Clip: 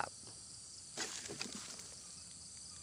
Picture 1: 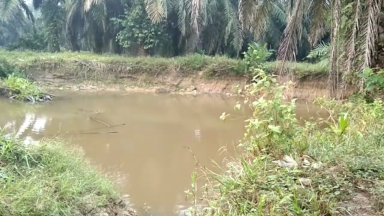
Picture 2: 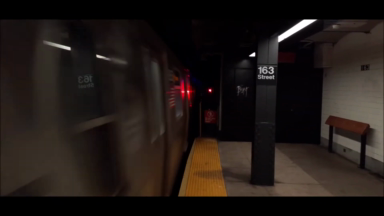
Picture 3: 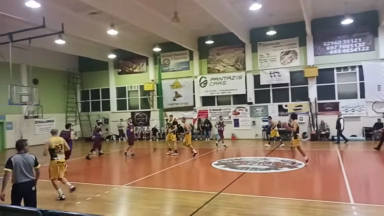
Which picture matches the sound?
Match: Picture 1